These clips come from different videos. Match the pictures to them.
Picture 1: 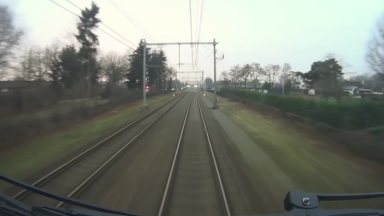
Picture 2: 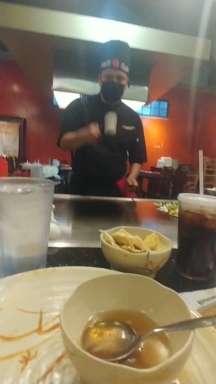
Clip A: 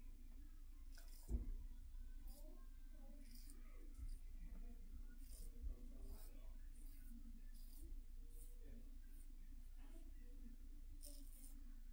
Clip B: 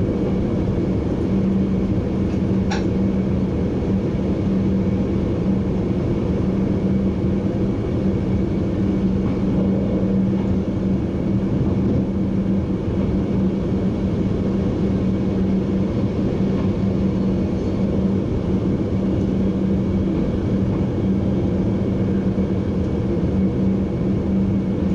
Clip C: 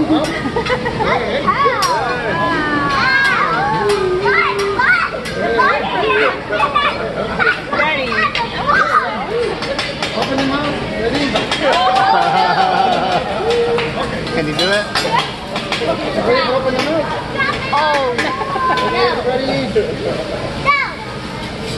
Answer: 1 B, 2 C